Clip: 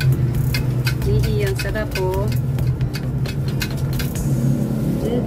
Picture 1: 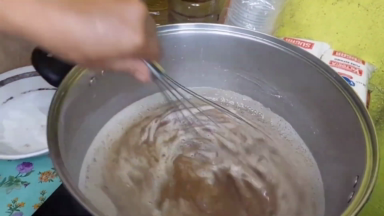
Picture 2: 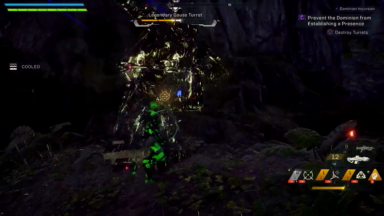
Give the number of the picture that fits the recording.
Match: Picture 1